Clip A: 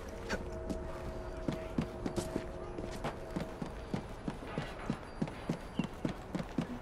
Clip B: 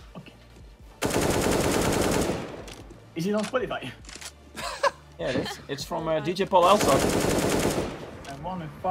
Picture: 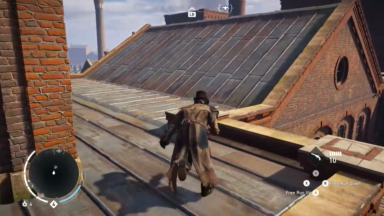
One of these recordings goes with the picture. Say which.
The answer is A